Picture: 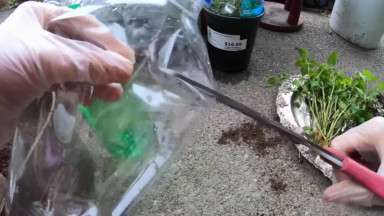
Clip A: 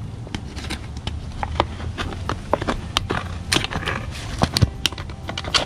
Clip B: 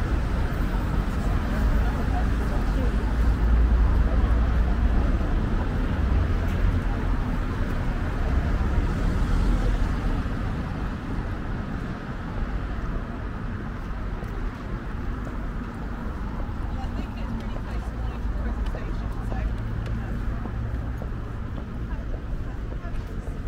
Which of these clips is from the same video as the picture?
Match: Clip A